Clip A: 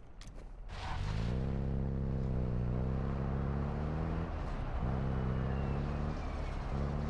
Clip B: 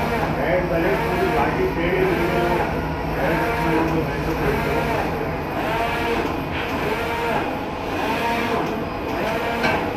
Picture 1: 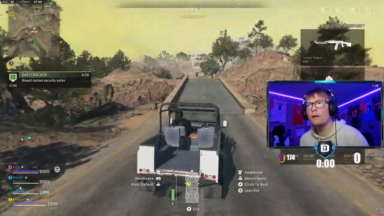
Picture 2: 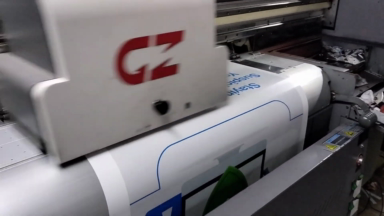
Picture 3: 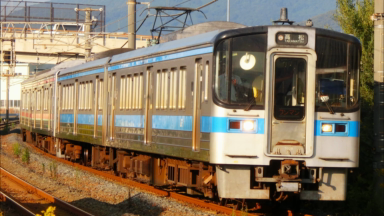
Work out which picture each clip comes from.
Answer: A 1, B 2